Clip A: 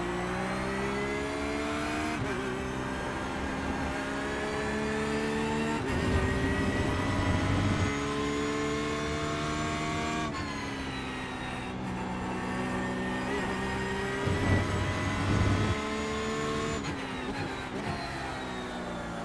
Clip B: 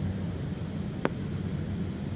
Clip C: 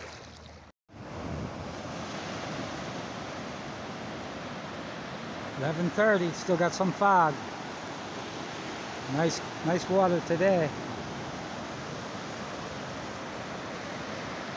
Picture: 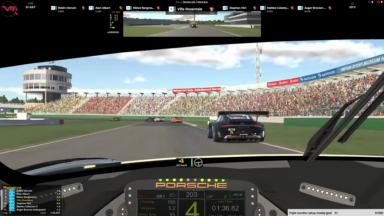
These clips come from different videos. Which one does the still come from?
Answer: A